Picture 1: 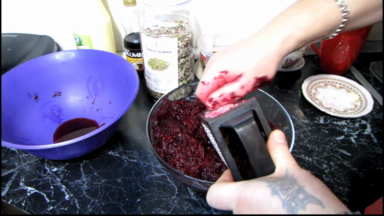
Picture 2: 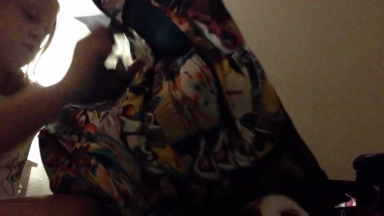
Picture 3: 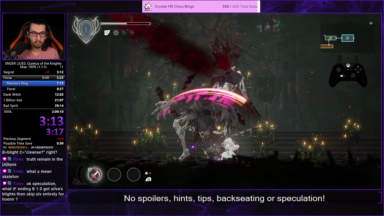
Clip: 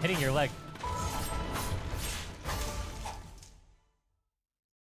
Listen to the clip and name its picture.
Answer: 3